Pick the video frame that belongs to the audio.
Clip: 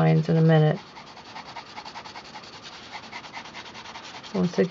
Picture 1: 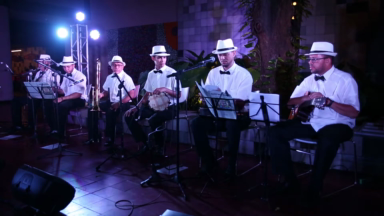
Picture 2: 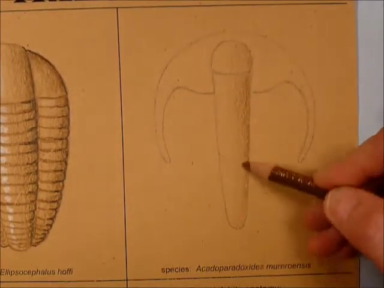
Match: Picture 2